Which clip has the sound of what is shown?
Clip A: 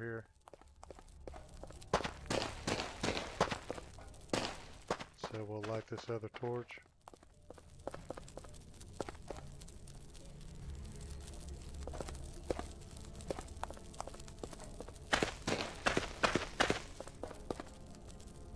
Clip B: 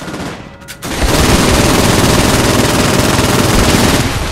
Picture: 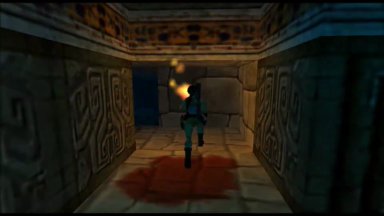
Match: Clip A